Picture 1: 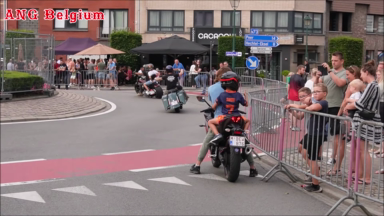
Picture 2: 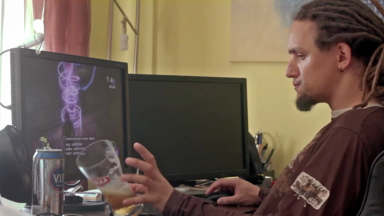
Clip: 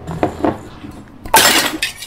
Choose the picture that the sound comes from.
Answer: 2